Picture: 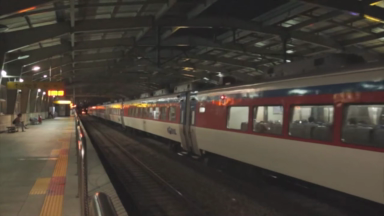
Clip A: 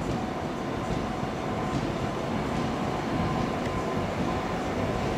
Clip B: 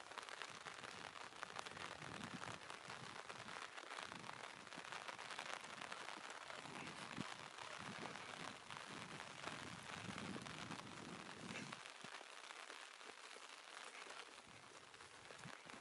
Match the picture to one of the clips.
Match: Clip A